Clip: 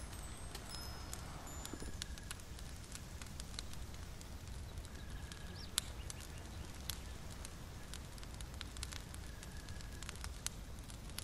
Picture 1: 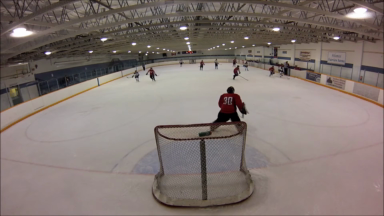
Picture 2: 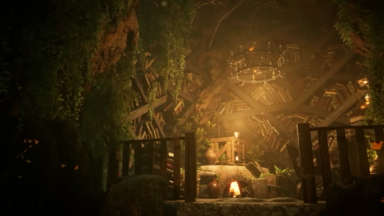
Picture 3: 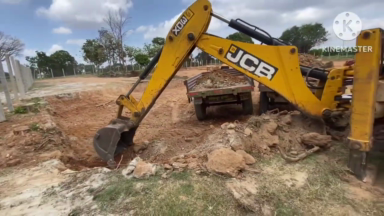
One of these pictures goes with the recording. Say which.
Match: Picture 2